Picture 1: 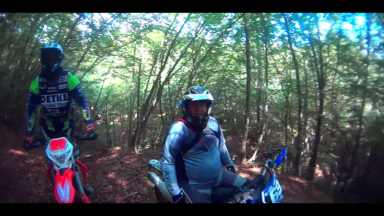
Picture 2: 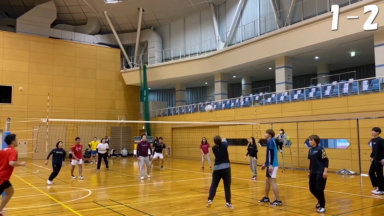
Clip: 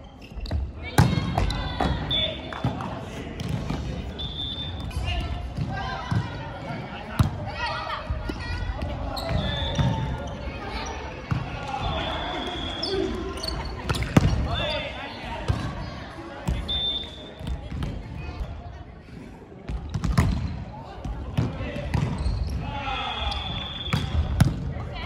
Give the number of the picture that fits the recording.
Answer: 2